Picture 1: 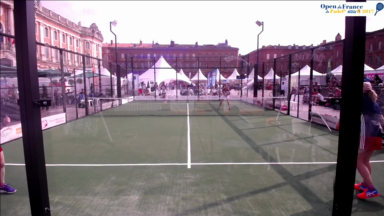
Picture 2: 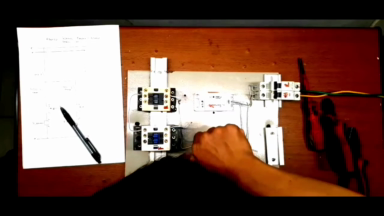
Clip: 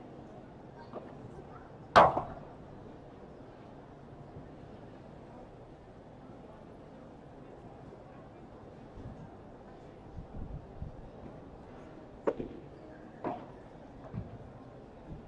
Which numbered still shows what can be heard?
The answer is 1